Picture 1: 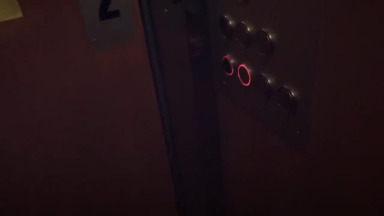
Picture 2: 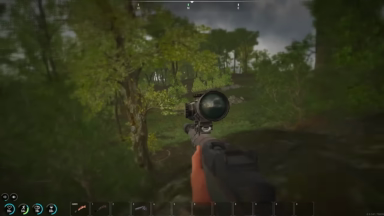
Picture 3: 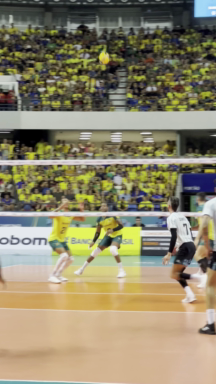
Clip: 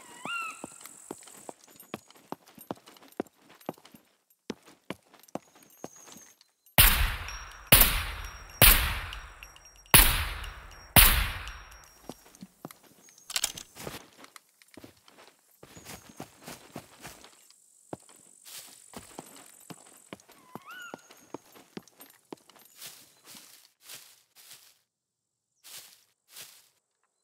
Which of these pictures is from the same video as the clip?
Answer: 2